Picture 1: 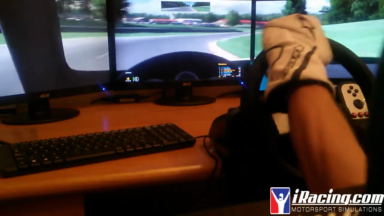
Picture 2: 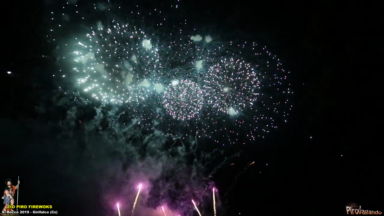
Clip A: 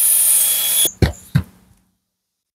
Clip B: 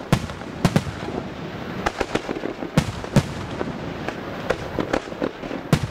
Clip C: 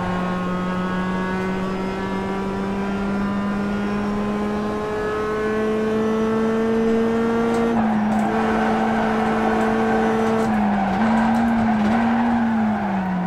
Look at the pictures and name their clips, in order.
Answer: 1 C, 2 B